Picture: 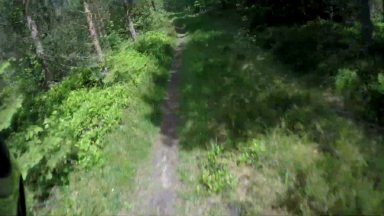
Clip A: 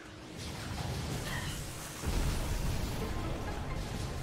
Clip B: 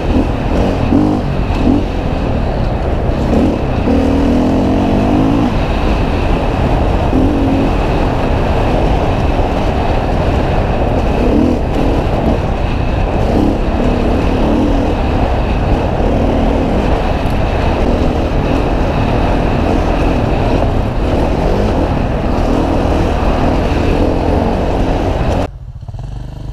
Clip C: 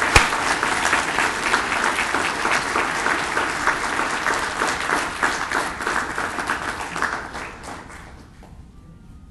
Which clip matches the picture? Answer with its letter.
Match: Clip B